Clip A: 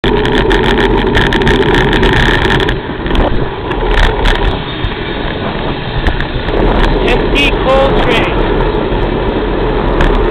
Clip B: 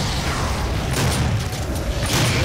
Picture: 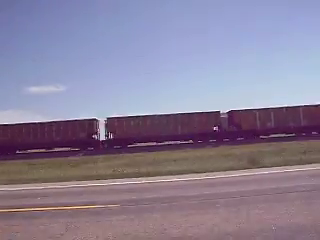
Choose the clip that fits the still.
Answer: A